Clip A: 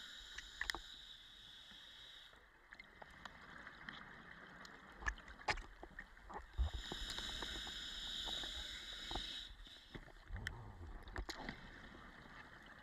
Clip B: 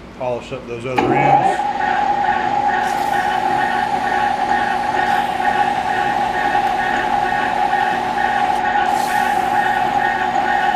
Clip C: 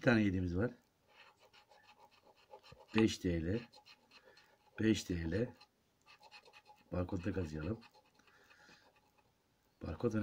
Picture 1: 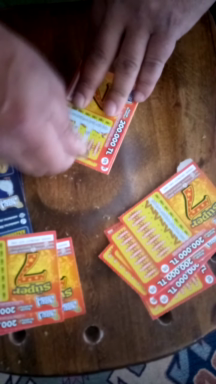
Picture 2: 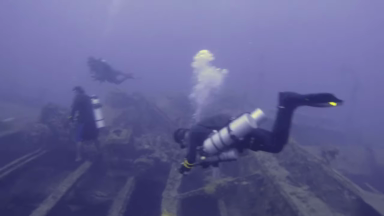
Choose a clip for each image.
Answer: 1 C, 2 A